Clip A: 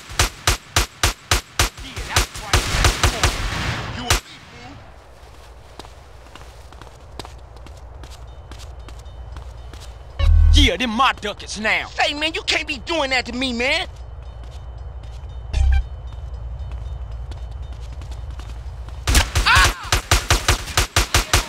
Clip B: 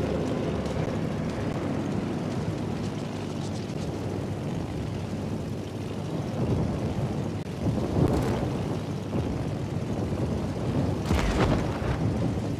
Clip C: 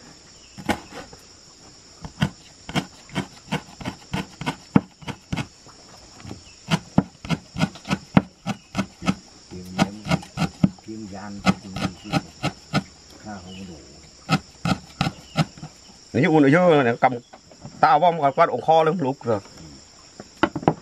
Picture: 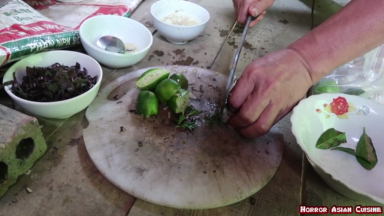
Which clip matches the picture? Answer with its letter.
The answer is C